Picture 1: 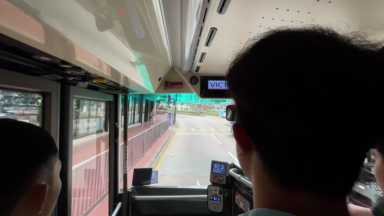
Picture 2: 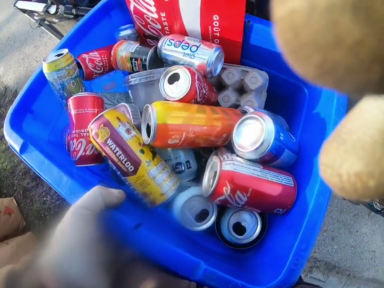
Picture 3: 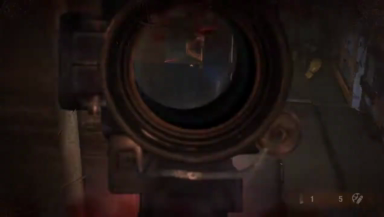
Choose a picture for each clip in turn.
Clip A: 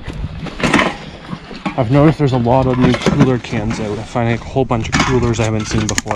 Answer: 2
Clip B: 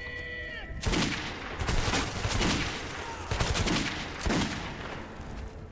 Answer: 3